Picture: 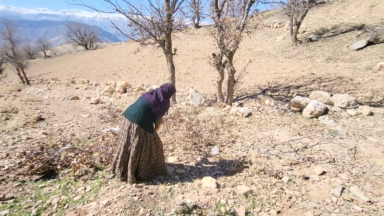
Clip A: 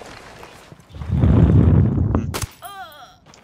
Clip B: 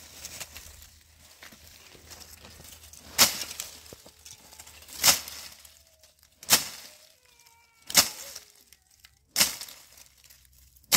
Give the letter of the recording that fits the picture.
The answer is B